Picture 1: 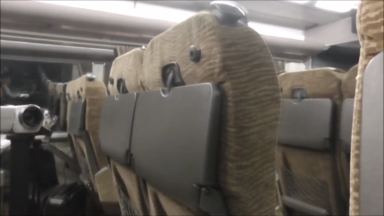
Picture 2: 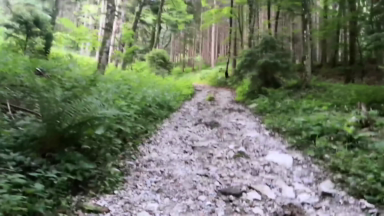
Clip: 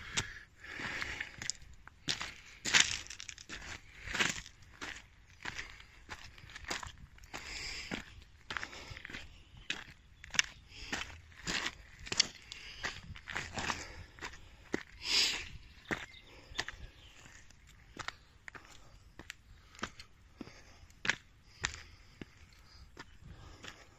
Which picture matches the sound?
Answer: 2